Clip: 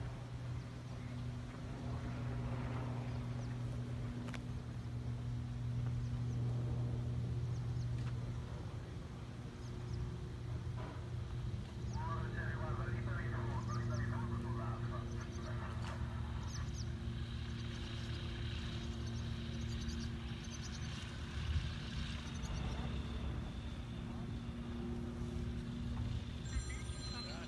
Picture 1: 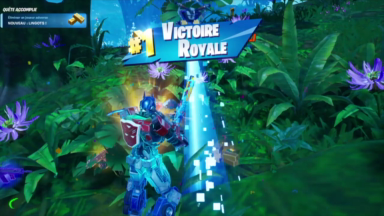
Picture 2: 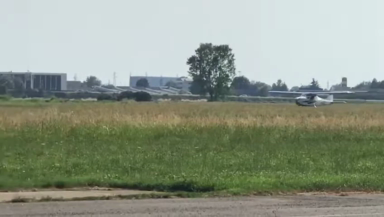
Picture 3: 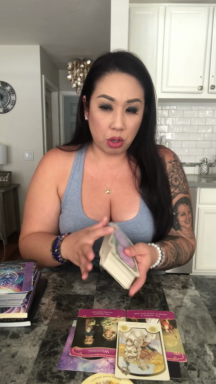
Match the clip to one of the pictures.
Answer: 2